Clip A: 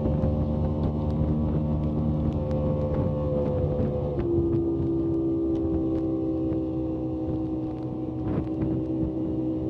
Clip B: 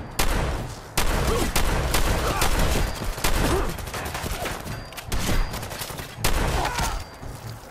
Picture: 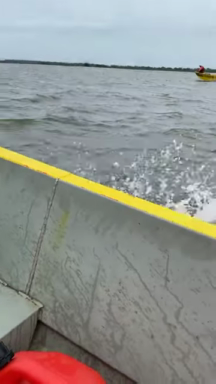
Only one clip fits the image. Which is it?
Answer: A